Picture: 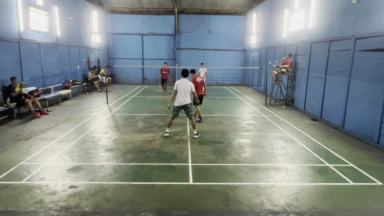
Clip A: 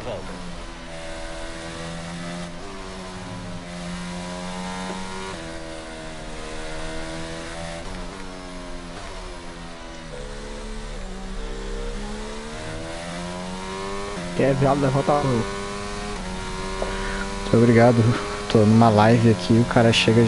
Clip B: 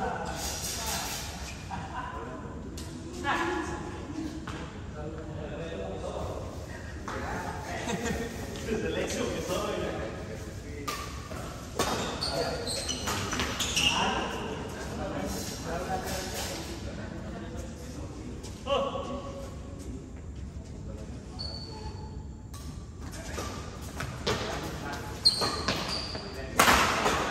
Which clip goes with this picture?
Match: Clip B